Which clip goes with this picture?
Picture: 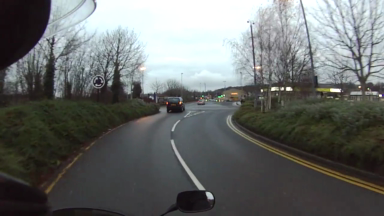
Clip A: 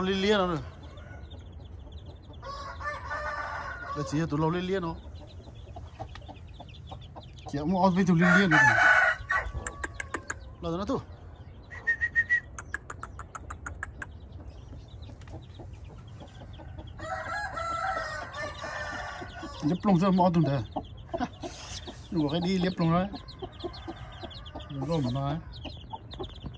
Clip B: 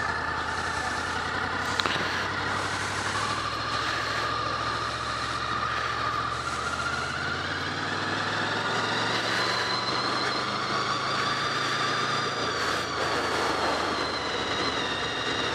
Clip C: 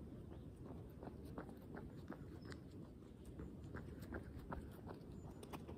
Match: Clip B